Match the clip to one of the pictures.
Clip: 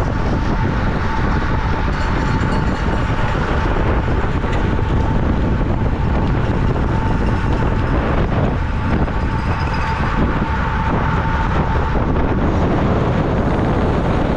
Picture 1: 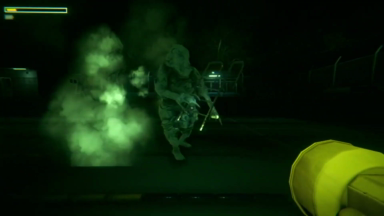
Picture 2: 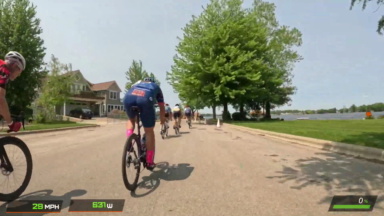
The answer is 2